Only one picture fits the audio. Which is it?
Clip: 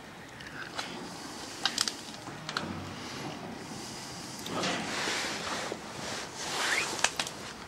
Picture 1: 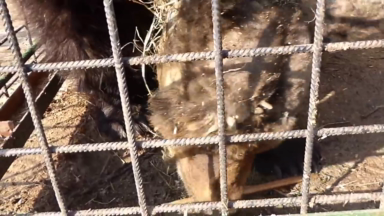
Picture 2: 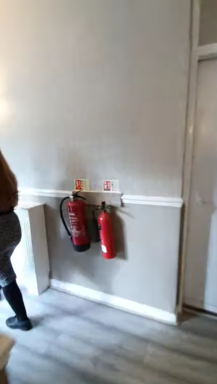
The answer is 1